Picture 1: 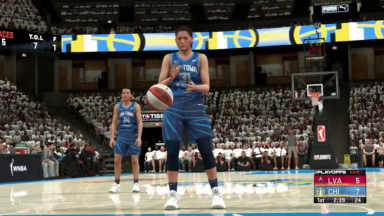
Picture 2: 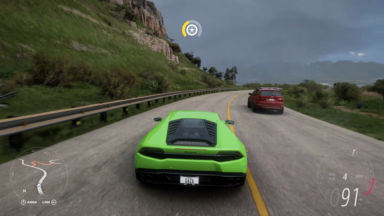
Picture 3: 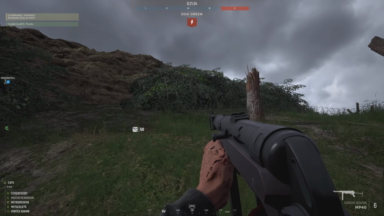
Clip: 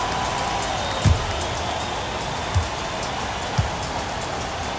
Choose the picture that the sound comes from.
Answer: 1